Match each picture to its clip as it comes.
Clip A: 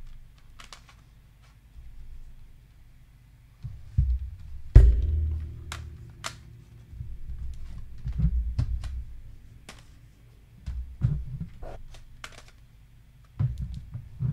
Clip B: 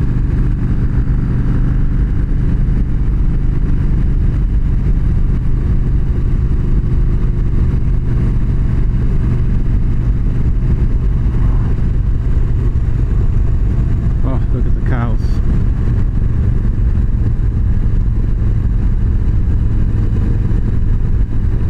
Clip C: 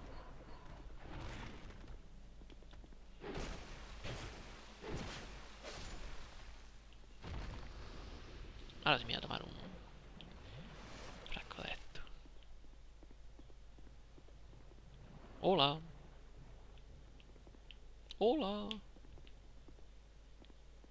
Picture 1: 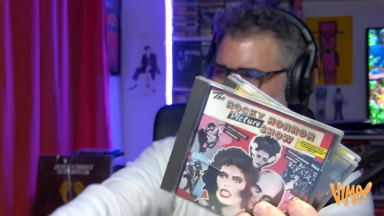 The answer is A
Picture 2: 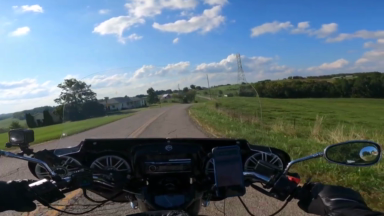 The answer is B